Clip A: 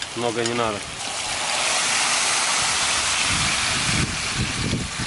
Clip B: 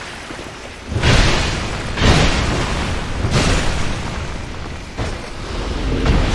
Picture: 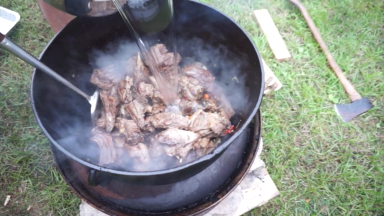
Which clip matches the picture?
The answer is A